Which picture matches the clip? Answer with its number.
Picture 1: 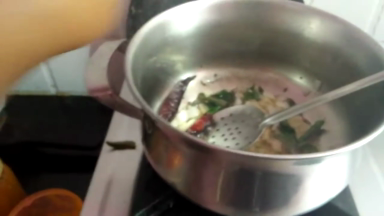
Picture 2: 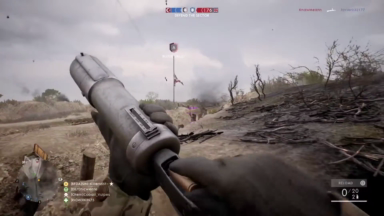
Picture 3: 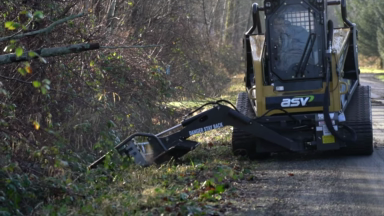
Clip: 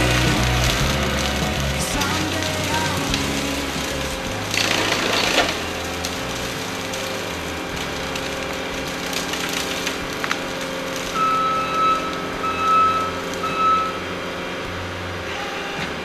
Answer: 3